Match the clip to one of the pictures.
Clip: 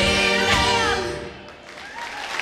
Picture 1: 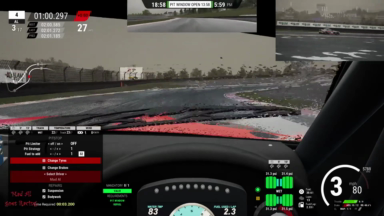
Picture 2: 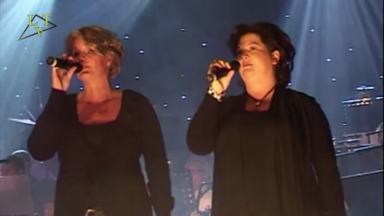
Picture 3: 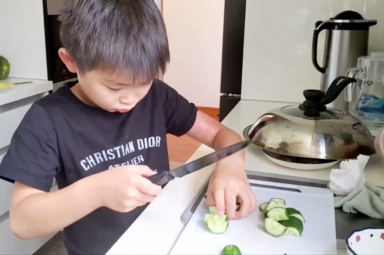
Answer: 2